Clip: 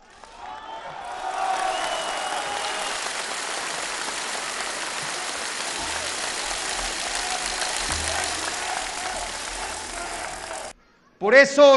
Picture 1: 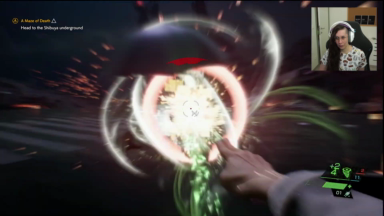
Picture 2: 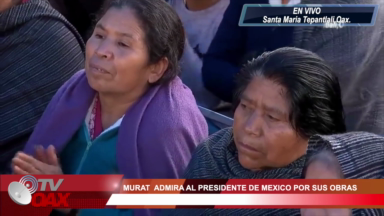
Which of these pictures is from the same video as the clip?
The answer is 2